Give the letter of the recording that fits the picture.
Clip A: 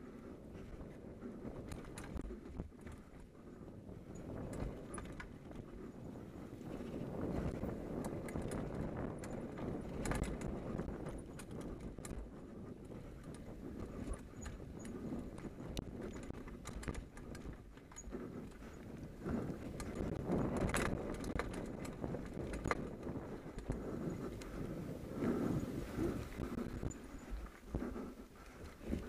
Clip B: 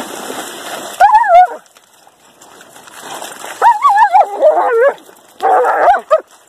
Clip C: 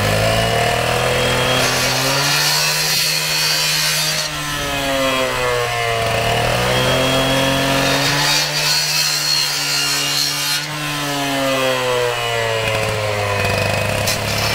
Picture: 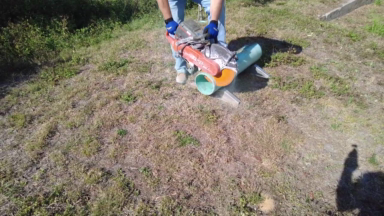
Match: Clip C